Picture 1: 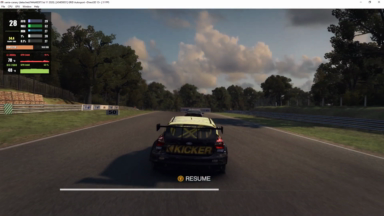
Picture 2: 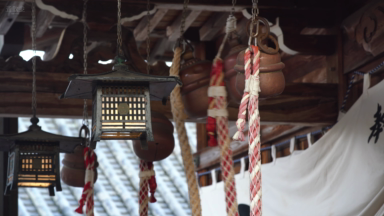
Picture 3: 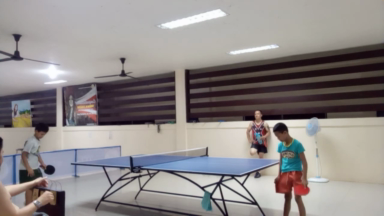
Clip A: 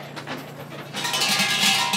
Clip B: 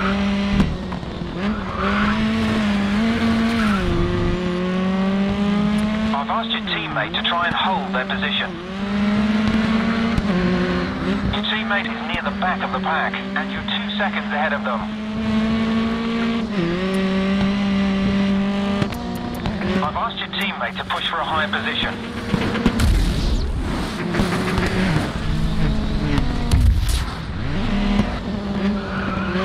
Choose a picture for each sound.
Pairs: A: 2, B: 1